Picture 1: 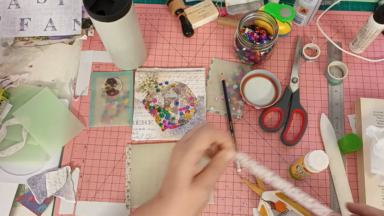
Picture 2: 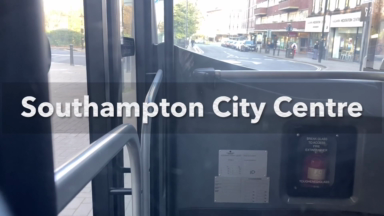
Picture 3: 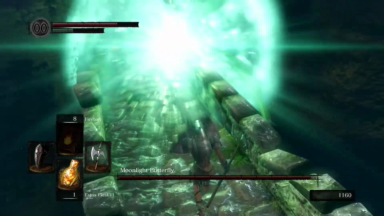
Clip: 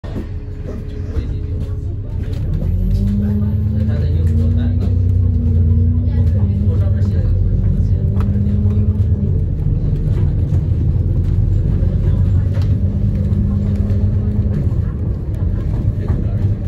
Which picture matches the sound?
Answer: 2